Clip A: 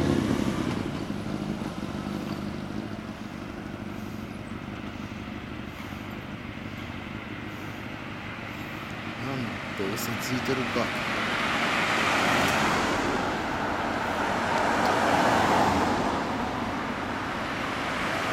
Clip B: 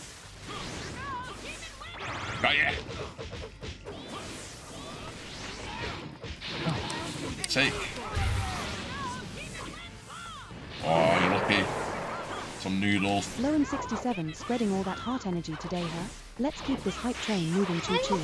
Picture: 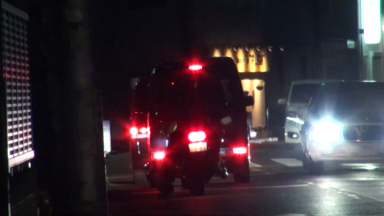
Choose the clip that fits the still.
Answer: A